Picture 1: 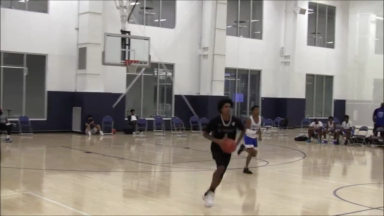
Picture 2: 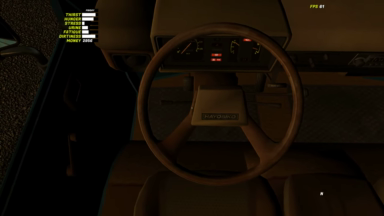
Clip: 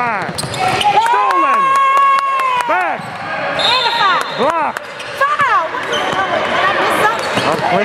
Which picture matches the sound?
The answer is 1